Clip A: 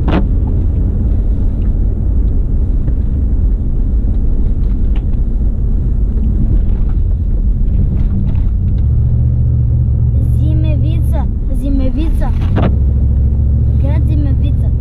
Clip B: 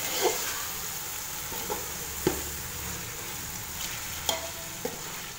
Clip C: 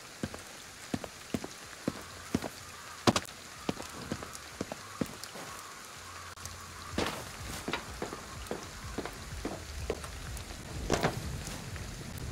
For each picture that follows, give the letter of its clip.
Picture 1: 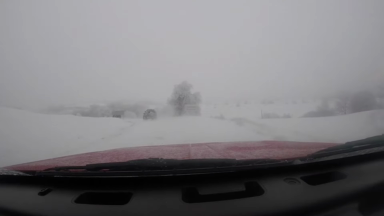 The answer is A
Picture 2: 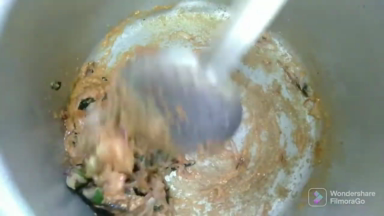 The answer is B